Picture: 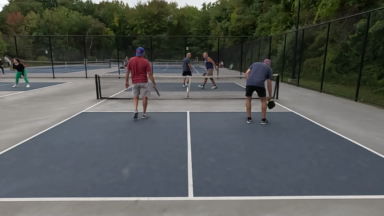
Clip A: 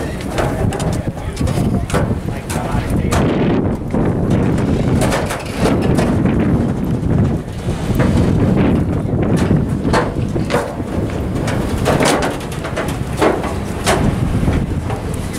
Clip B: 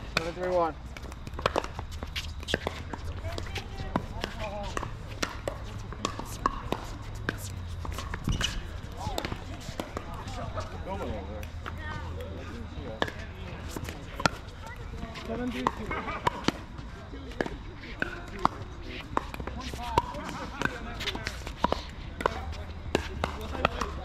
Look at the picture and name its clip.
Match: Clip B